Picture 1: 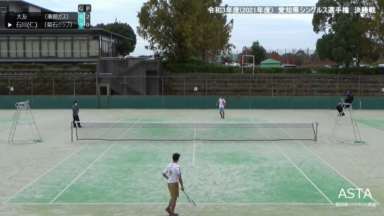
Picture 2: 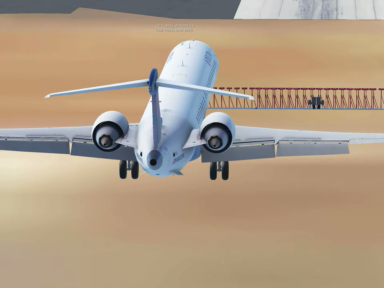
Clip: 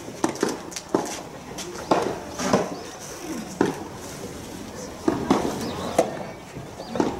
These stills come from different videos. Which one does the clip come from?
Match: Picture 1